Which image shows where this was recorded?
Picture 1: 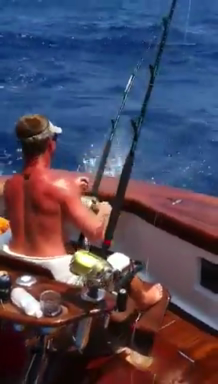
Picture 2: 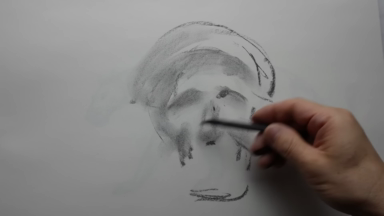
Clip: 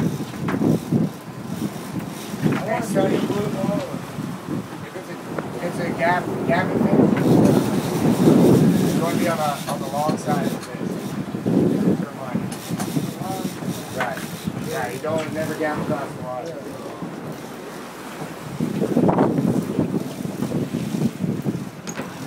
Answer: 1